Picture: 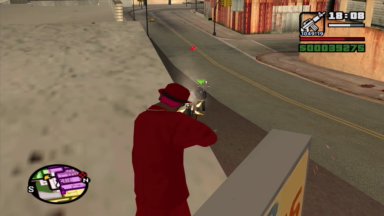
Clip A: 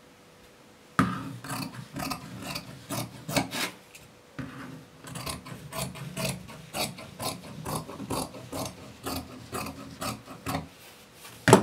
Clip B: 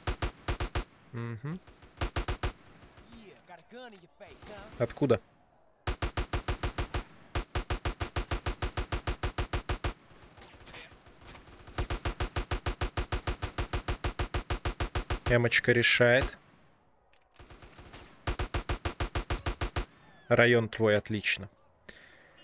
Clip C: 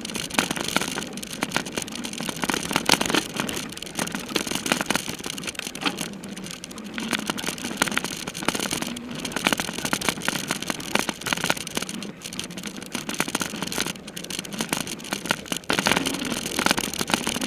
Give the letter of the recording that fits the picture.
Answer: B